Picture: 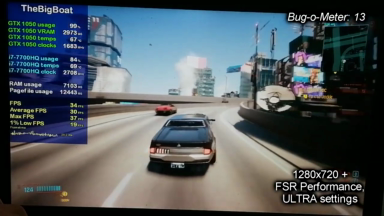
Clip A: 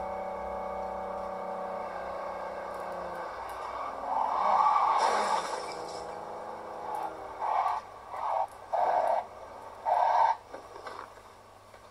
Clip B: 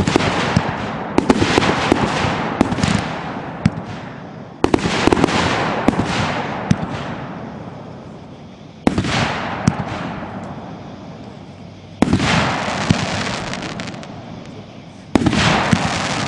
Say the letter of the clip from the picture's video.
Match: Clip A